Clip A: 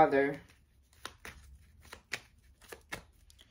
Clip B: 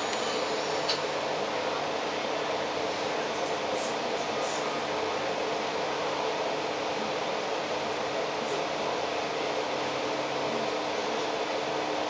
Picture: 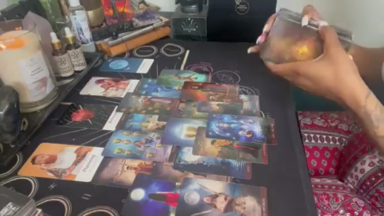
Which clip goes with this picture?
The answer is A